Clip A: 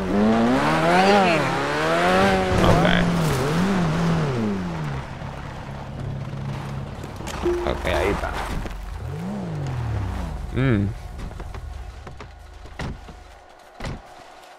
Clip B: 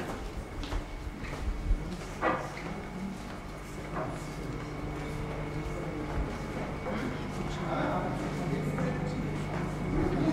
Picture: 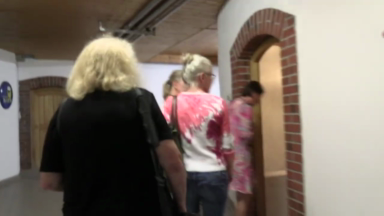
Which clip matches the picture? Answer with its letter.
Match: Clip B